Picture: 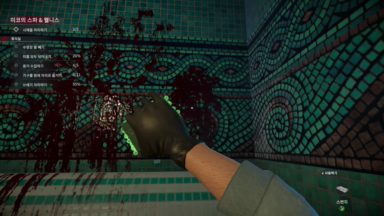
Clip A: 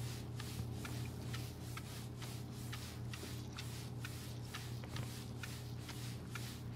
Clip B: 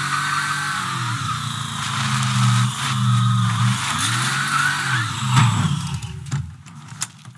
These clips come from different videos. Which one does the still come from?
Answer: A